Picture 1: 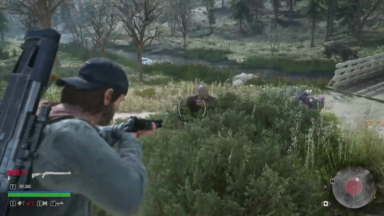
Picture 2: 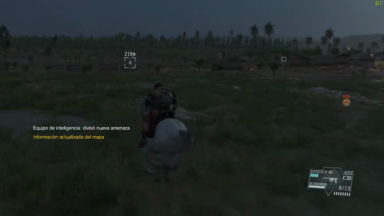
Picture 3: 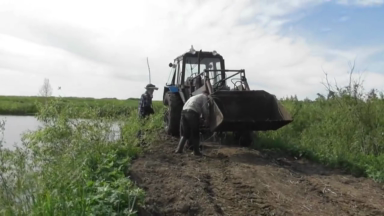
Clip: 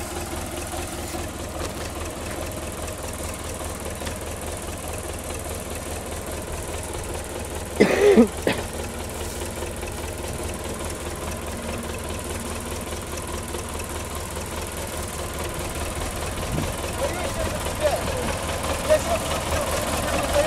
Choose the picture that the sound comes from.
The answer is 3